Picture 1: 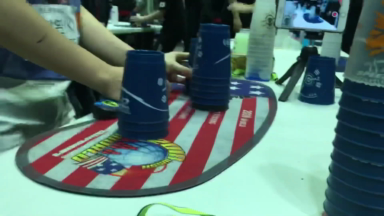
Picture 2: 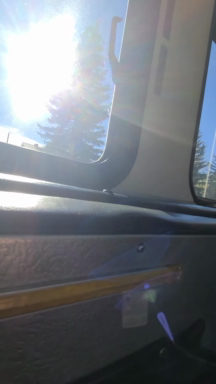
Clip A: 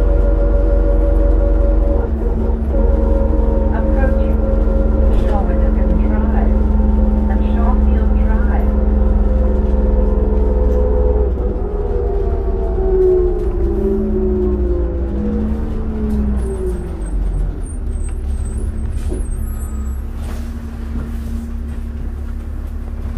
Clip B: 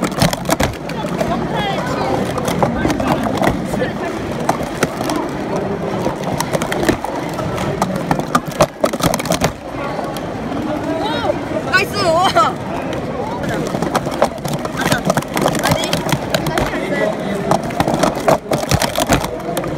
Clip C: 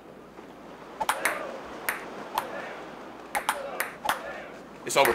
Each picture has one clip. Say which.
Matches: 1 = B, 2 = A